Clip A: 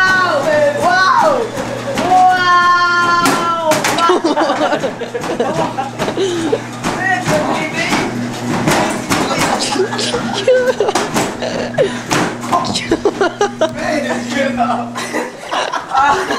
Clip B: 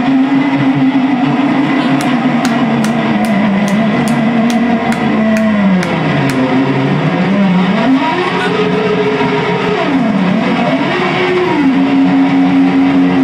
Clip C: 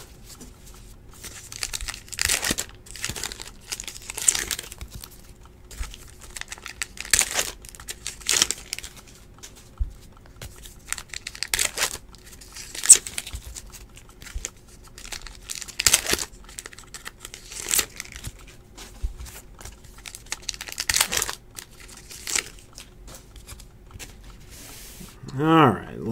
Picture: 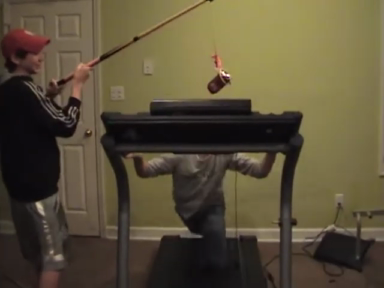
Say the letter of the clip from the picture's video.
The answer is A